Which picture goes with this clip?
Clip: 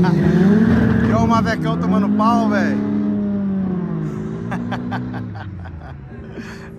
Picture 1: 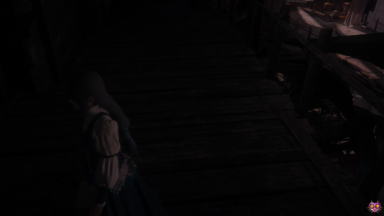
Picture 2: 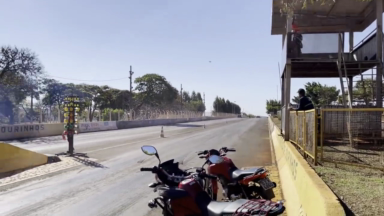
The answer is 2